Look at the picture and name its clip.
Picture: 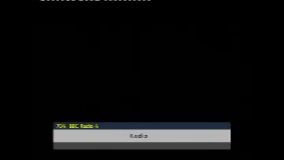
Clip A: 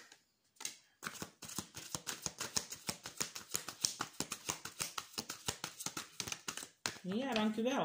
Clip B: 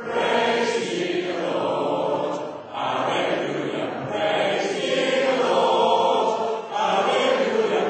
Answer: B